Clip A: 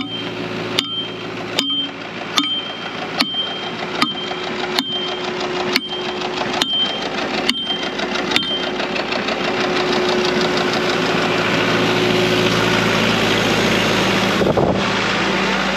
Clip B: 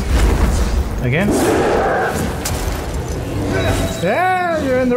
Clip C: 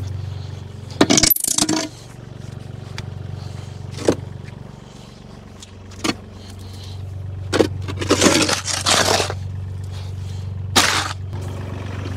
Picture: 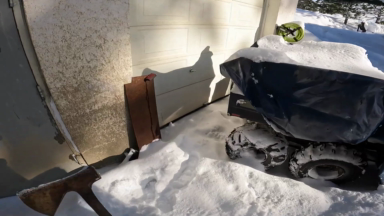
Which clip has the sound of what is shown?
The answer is A